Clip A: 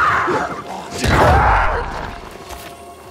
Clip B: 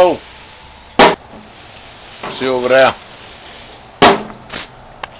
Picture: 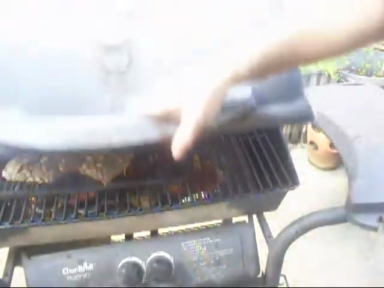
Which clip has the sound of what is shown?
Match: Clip B